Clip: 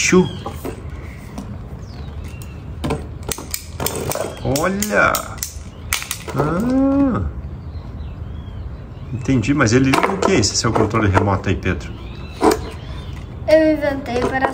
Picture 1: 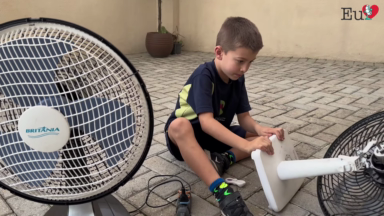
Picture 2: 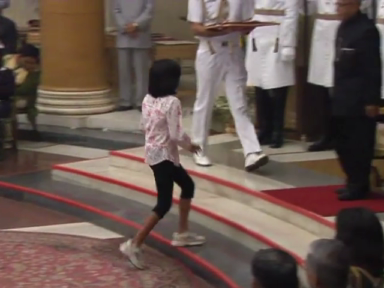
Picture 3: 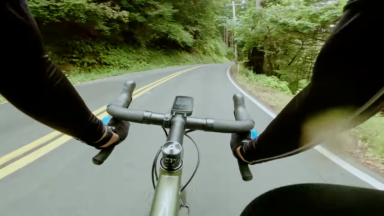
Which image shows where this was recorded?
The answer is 1